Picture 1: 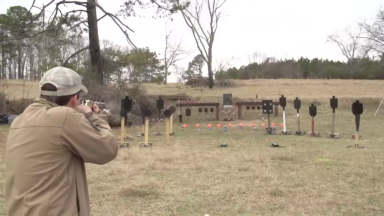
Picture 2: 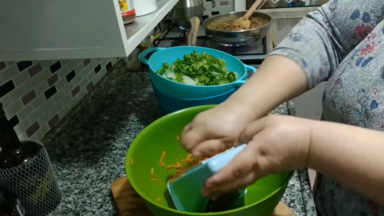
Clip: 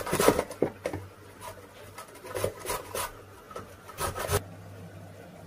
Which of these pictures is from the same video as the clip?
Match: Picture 2